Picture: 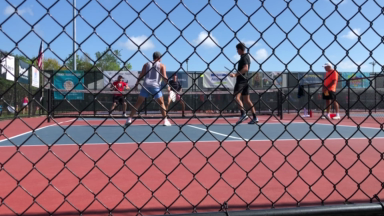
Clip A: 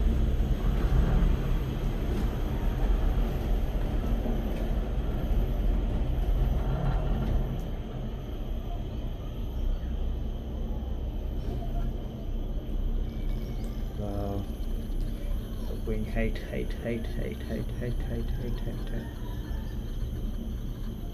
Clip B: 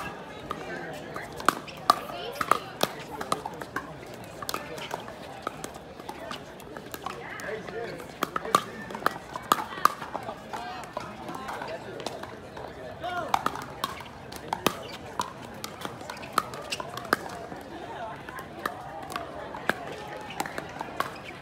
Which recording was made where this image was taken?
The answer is B